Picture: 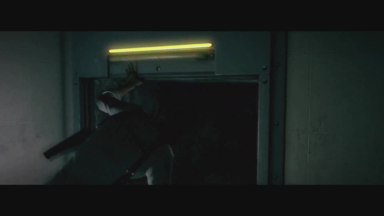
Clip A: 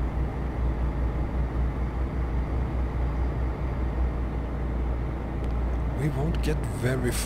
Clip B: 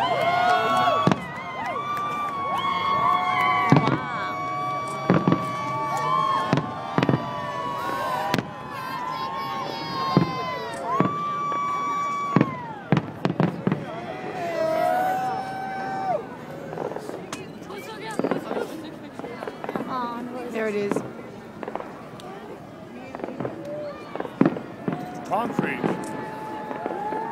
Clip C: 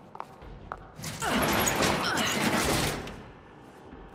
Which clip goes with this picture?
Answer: C